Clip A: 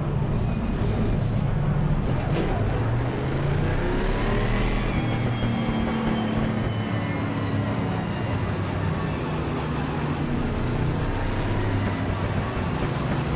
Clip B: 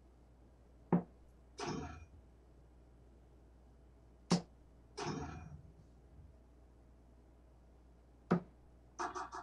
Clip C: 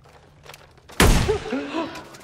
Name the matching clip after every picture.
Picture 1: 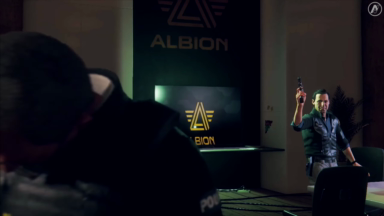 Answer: C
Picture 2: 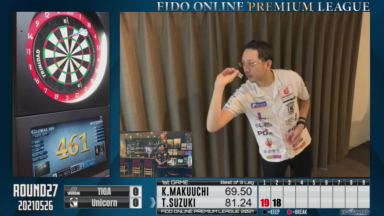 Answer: B